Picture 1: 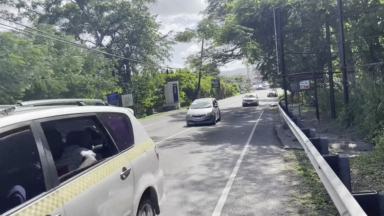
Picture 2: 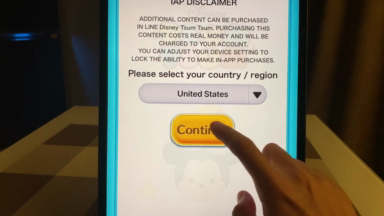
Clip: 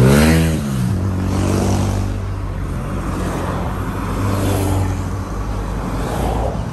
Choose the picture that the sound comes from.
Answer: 1